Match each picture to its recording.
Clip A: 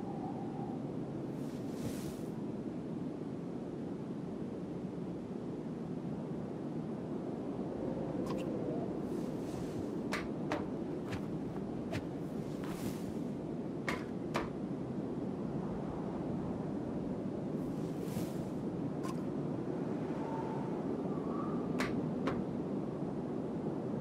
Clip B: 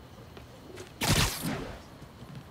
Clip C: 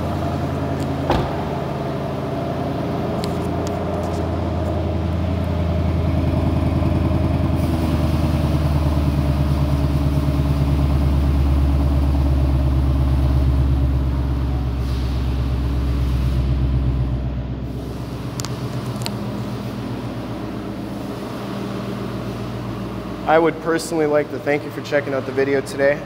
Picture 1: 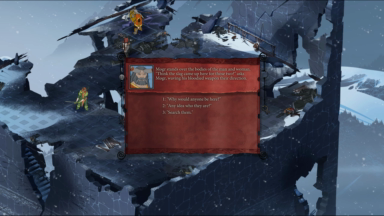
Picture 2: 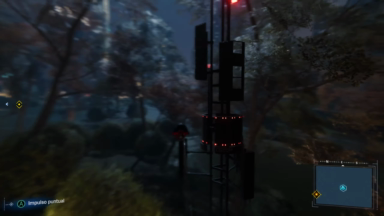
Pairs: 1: A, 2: B